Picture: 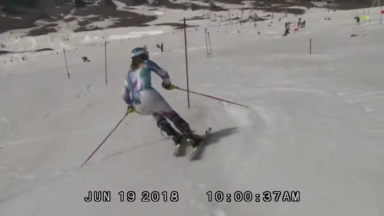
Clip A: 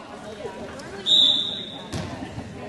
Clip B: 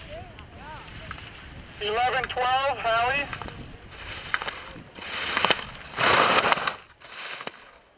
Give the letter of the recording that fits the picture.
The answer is B